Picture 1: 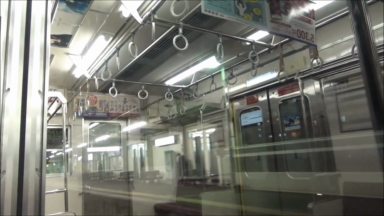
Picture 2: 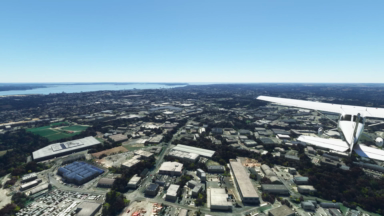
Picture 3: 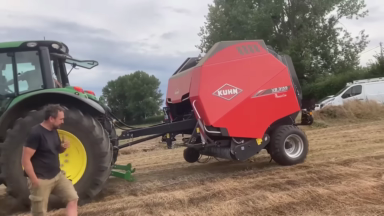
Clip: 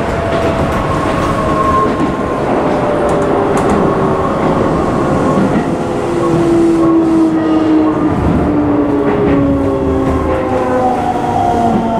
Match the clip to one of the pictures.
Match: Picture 1